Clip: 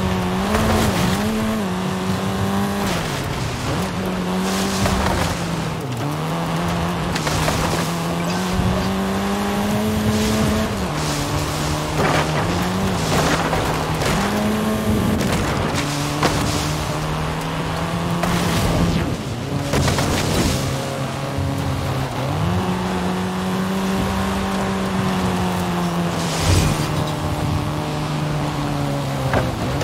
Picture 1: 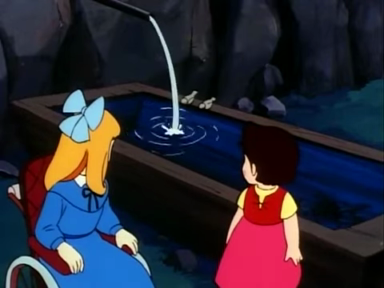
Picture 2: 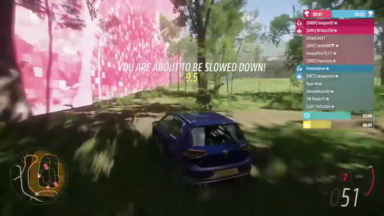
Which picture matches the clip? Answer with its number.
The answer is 2